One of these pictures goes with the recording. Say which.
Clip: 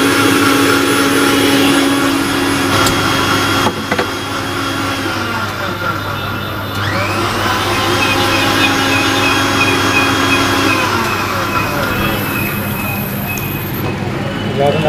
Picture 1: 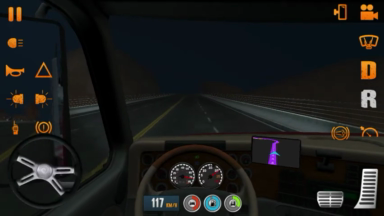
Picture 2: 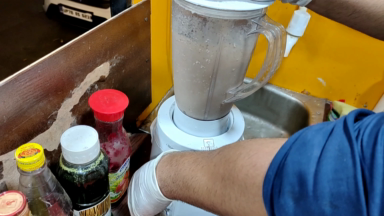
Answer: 2